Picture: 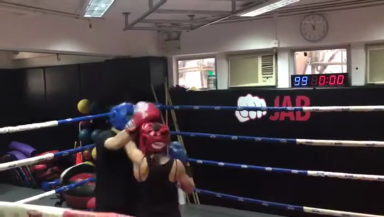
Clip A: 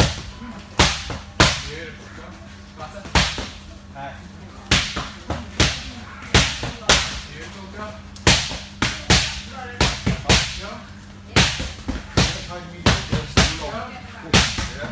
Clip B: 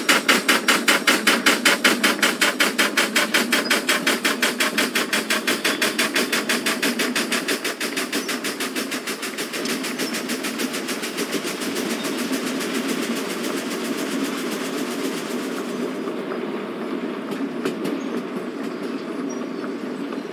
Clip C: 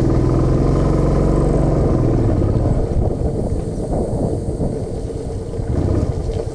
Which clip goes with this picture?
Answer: A